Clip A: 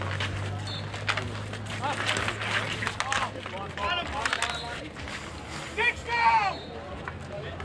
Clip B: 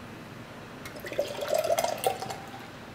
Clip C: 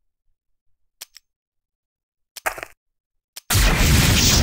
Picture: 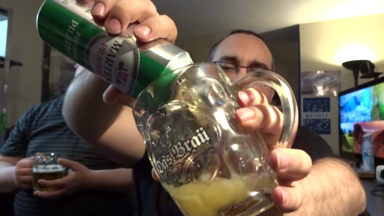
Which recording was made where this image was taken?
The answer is B